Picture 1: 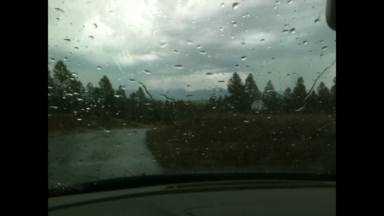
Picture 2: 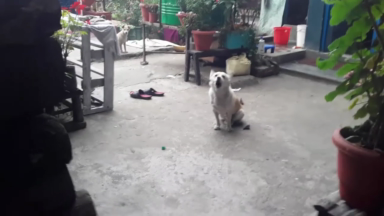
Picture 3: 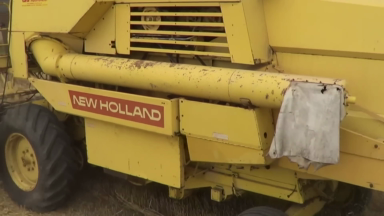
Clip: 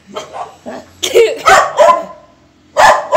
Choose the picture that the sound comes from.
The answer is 2